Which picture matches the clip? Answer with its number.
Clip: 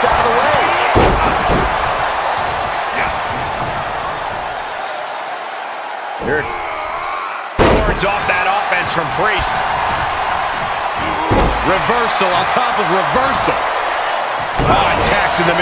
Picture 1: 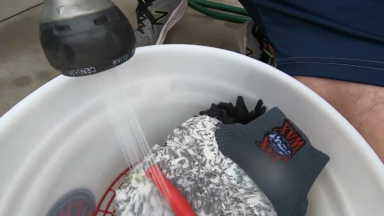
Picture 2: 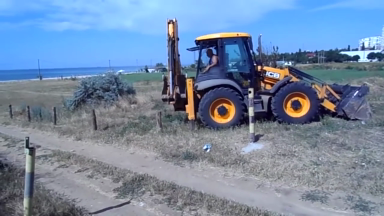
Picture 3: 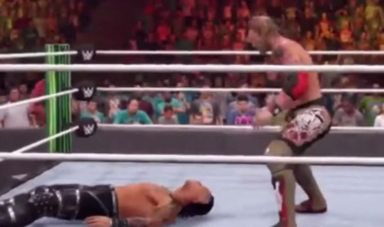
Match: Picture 3